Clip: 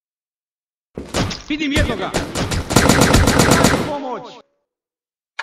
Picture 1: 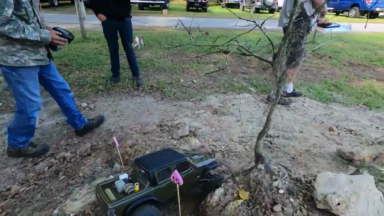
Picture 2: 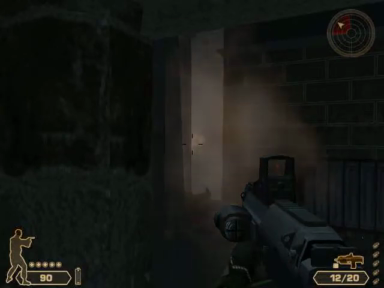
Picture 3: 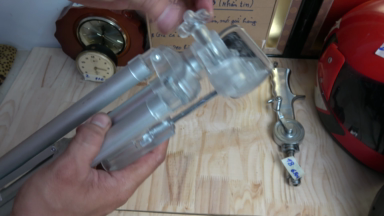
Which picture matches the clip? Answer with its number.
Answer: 2